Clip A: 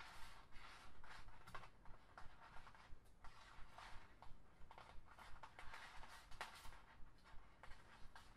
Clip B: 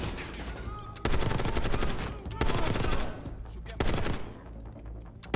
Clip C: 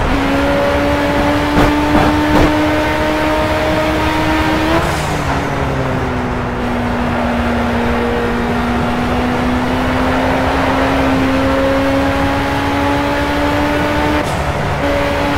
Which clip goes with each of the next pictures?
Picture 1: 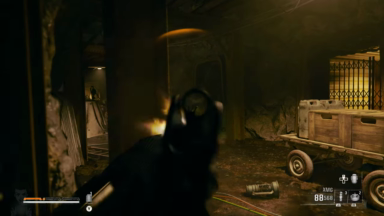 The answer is B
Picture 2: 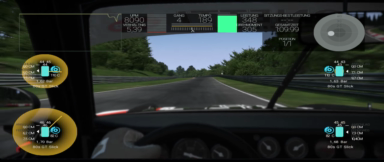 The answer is C